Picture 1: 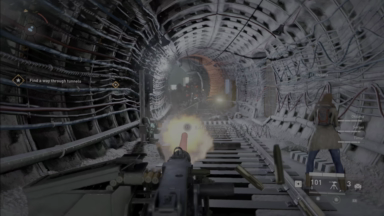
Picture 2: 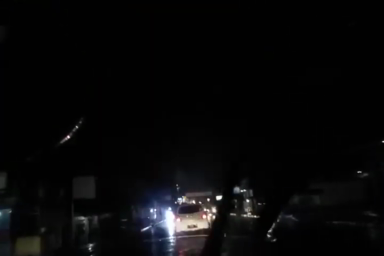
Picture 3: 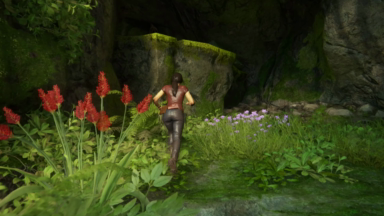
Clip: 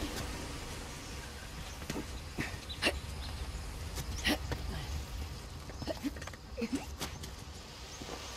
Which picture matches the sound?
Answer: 3